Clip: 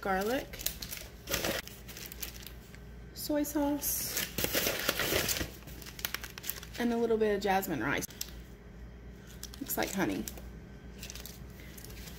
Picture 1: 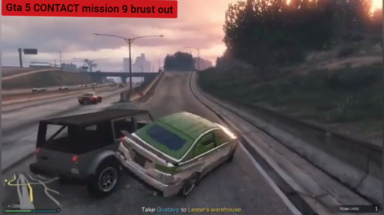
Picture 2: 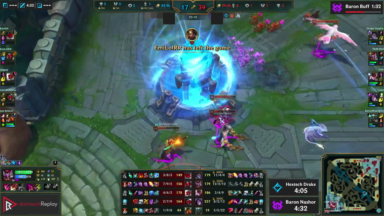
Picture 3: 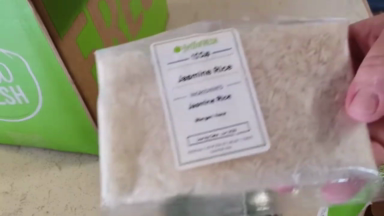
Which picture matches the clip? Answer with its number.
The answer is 3